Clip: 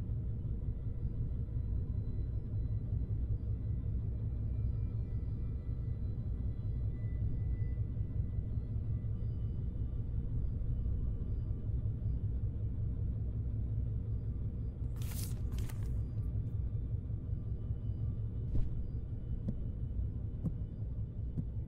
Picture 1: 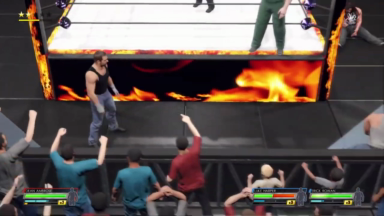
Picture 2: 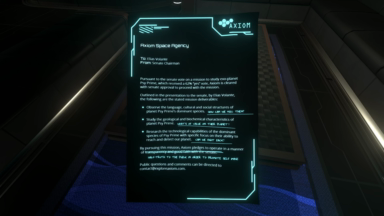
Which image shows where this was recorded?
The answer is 2